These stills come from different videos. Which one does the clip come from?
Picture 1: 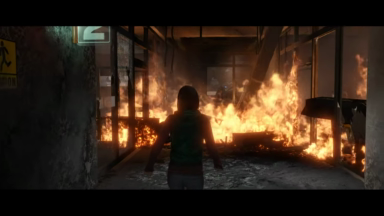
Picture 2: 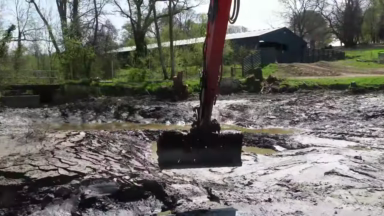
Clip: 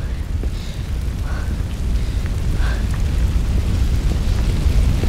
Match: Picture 1